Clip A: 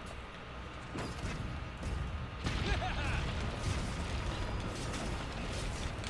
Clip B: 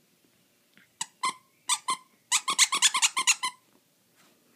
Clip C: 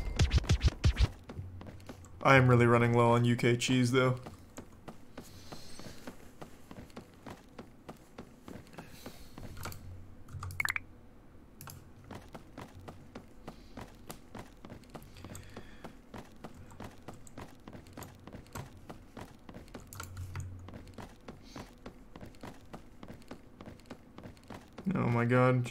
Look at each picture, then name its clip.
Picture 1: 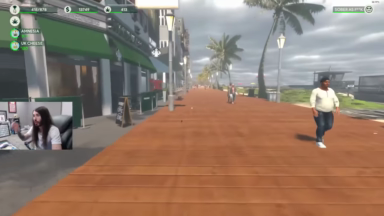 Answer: C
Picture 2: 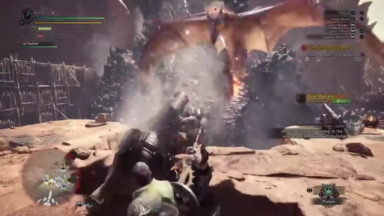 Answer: A